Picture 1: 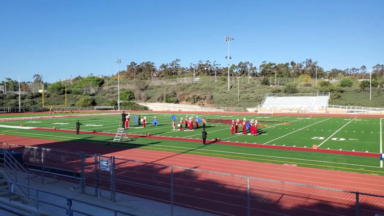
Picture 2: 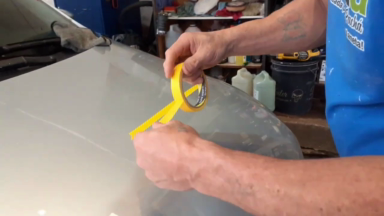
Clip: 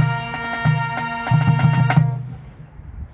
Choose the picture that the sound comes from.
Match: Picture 1